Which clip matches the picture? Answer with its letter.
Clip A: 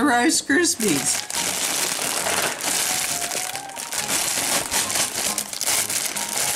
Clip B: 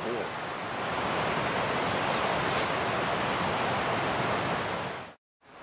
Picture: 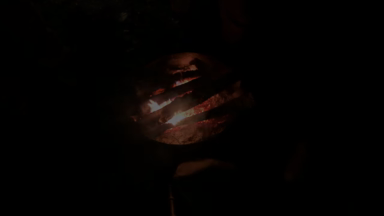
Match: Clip B